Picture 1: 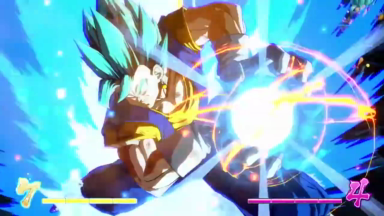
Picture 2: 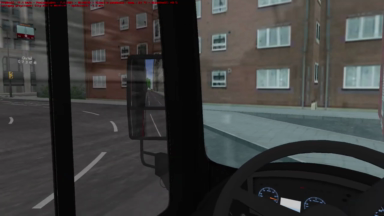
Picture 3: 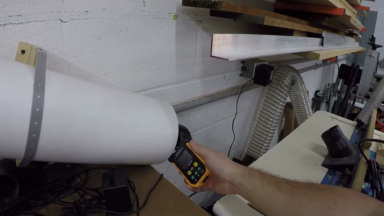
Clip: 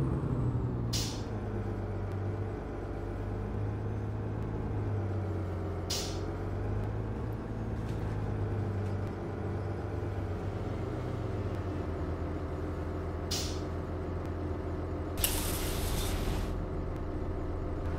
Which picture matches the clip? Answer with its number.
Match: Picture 2